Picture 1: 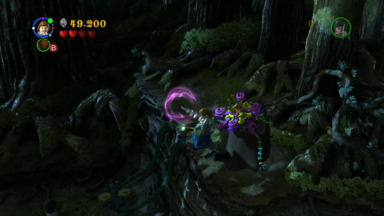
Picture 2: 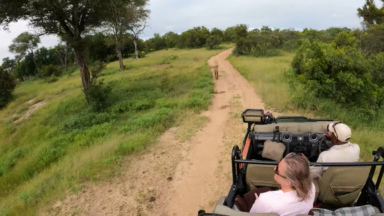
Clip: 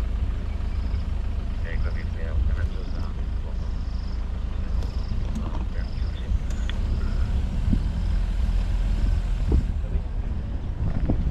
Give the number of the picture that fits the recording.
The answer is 2